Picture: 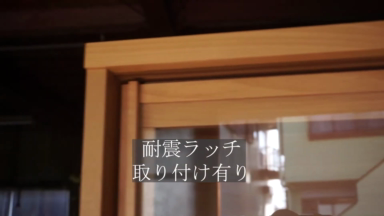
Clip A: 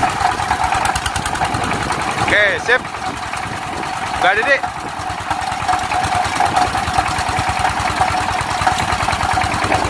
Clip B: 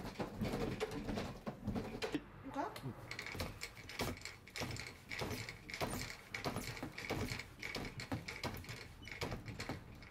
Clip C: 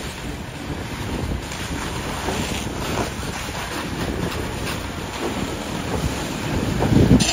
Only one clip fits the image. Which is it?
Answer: B